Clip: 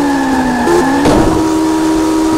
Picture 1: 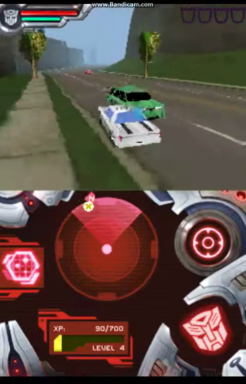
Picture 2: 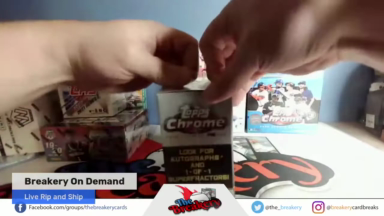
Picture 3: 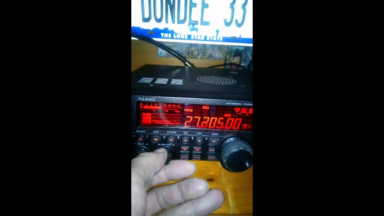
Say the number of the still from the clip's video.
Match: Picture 1